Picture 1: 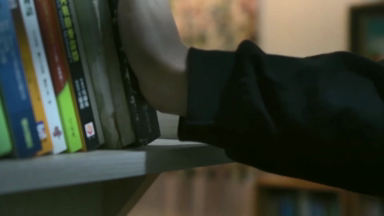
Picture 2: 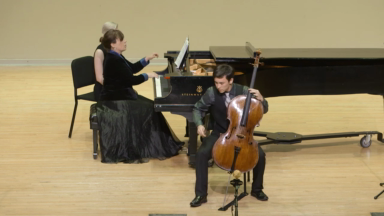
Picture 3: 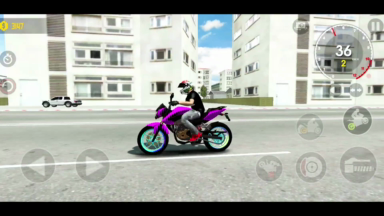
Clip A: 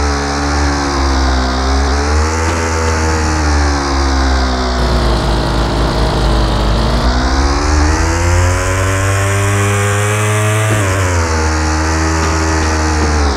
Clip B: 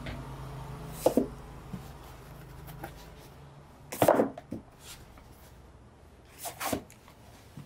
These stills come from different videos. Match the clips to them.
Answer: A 3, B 1